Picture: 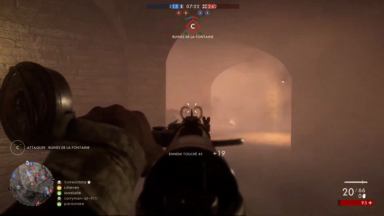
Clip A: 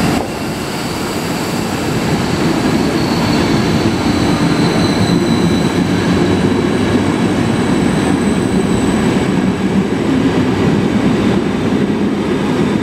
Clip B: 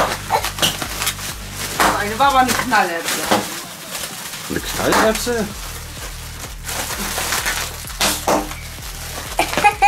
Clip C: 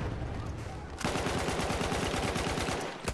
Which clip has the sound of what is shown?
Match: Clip C